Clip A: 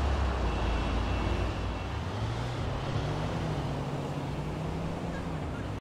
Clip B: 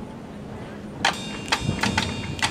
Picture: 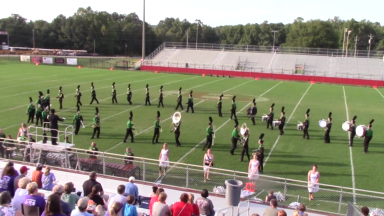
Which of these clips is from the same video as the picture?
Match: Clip B